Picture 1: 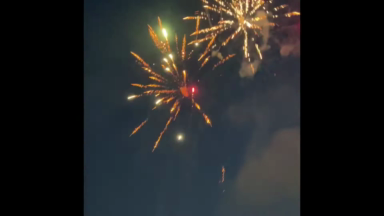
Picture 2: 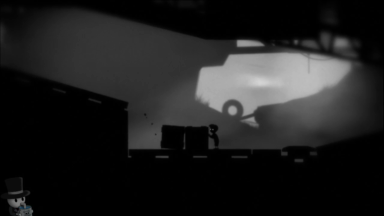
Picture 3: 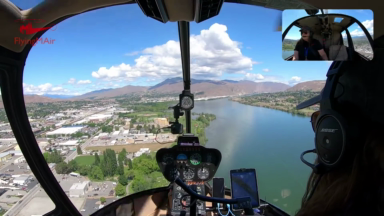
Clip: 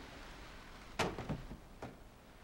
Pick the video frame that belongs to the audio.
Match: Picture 2